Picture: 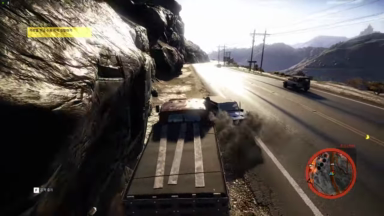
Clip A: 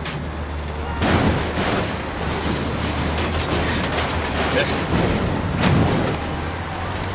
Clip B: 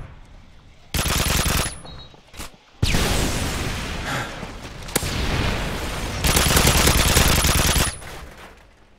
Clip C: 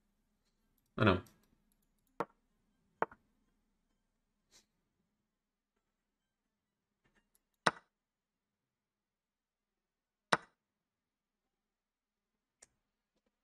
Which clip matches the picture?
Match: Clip A